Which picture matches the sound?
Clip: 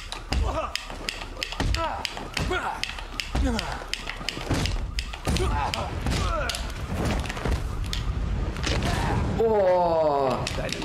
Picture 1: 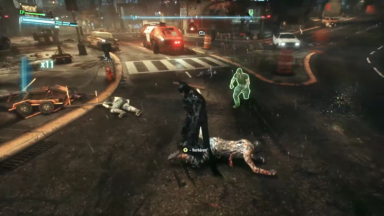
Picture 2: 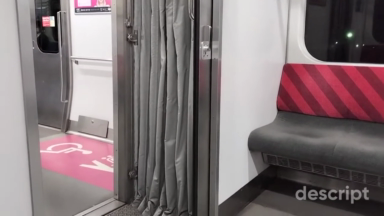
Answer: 1